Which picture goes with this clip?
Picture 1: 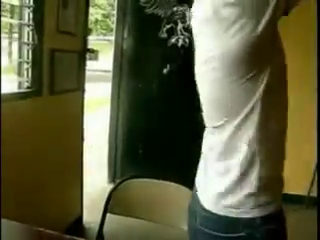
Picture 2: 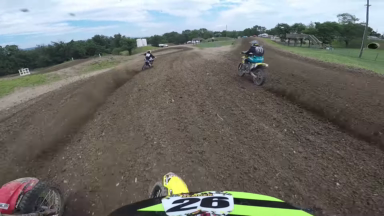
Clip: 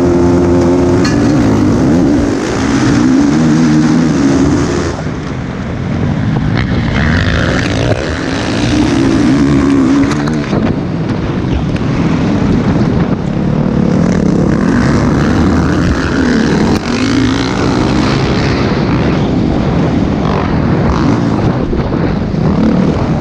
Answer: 2